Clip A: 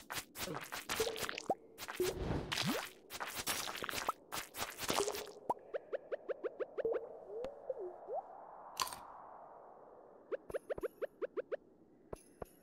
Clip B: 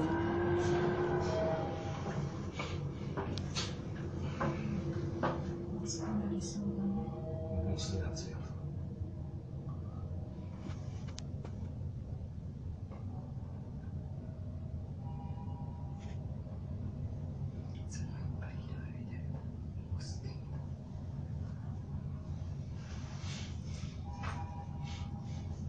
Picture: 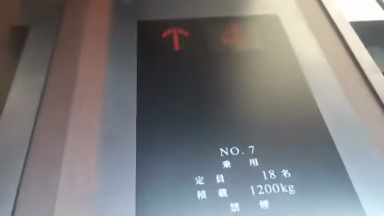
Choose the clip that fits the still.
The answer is B